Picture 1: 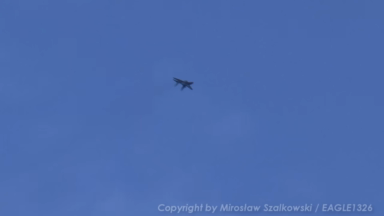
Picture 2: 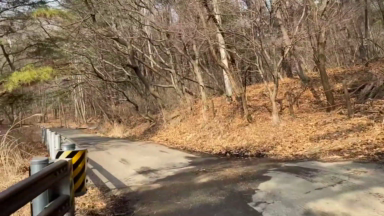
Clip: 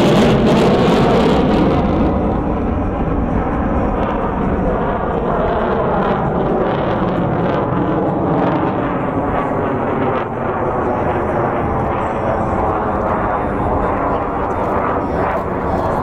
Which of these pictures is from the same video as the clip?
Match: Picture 1